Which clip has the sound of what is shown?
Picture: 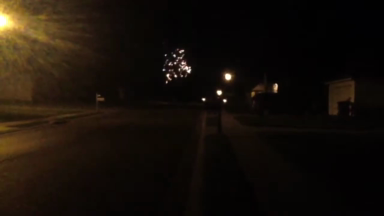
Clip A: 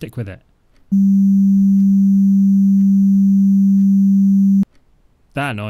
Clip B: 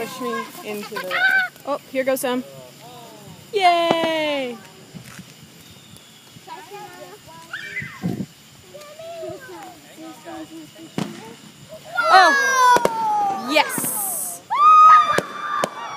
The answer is B